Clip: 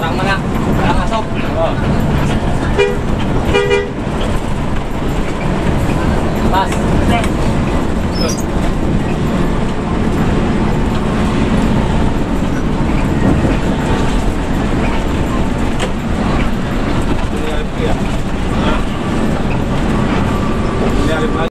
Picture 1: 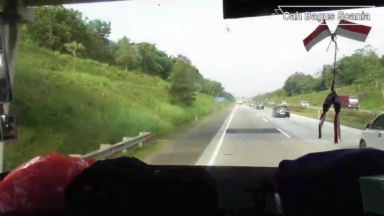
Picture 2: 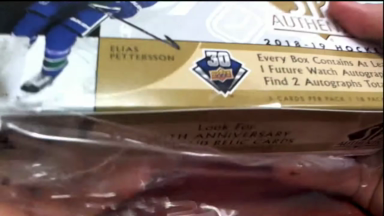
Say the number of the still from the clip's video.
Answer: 1